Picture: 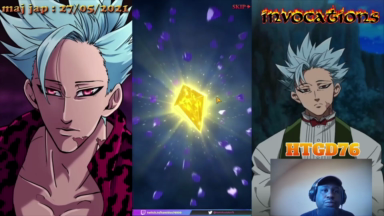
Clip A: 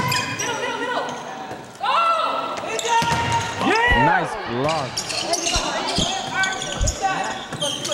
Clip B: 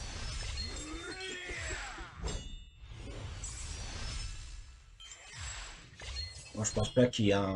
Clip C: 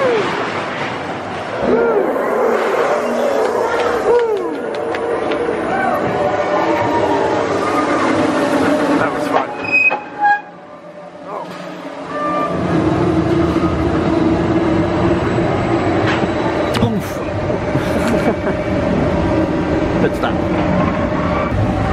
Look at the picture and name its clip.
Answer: B